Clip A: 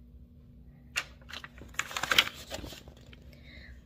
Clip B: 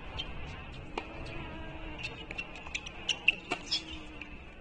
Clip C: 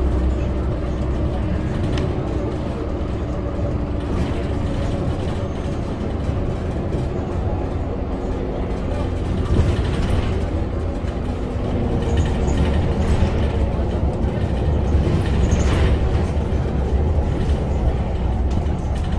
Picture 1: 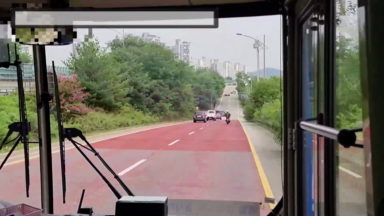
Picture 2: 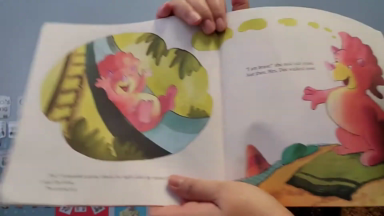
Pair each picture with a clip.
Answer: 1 C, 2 A